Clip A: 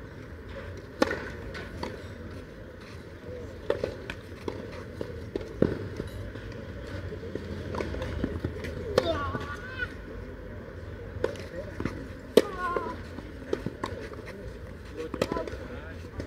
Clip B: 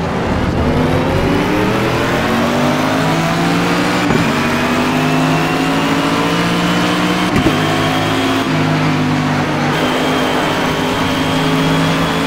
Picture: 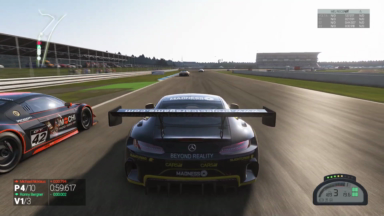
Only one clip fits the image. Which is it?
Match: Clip B